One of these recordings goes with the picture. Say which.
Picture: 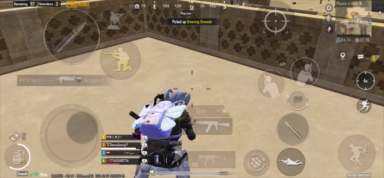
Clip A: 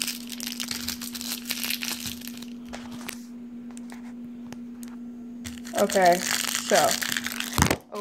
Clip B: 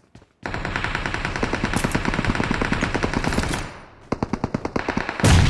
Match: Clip B